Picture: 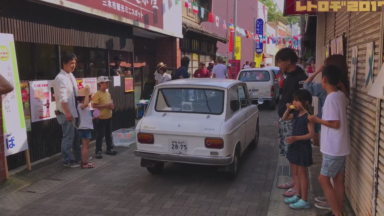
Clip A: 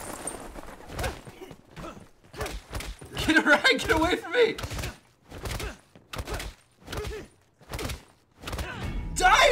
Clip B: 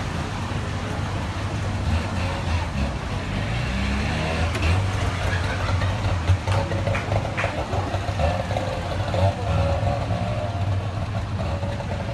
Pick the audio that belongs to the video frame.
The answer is B